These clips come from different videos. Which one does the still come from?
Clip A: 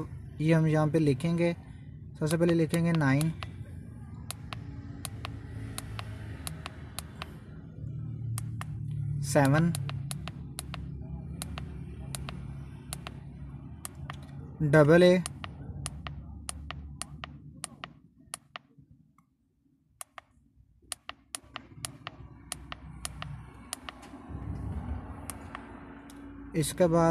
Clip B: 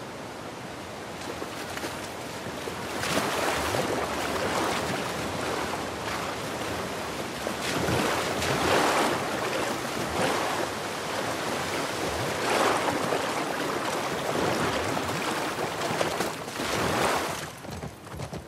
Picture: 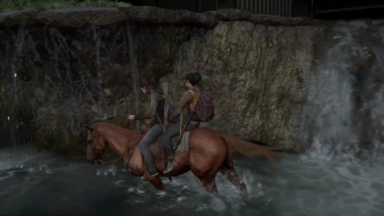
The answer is B